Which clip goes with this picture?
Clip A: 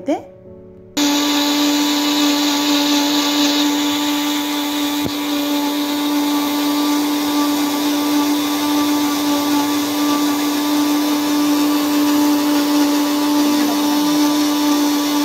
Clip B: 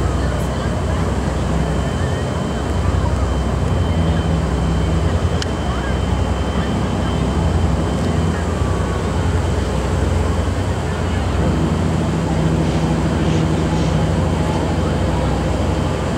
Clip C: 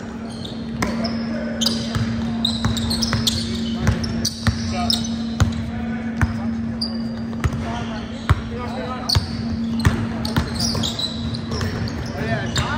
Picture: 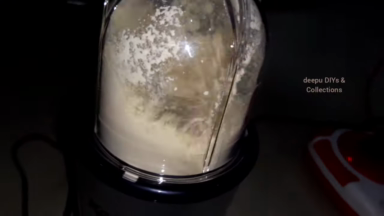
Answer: A